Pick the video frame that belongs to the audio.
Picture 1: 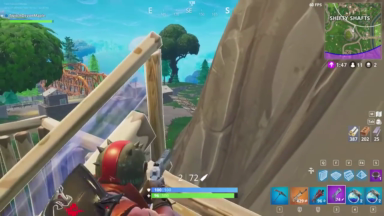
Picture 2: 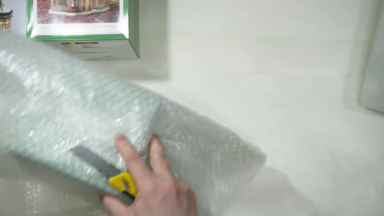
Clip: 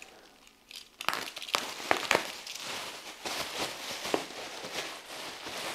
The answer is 2